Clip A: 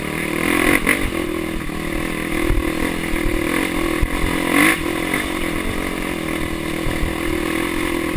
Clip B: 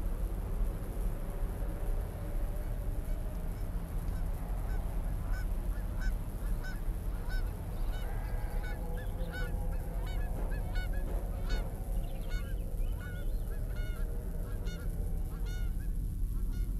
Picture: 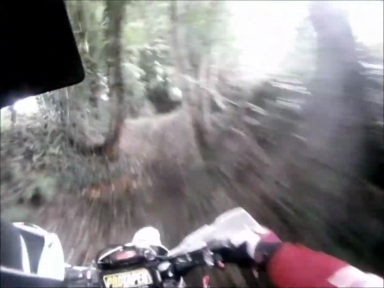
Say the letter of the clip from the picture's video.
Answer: A